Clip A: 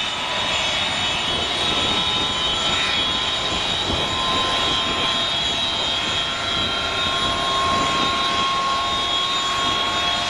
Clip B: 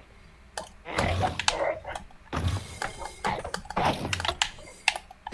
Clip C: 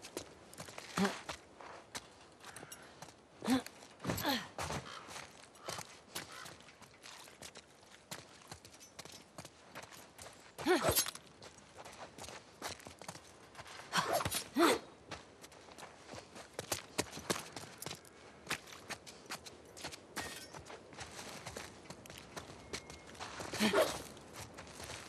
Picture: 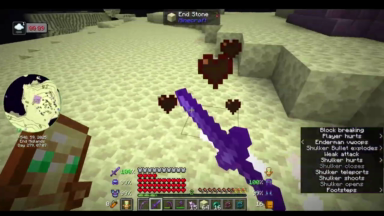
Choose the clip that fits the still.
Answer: B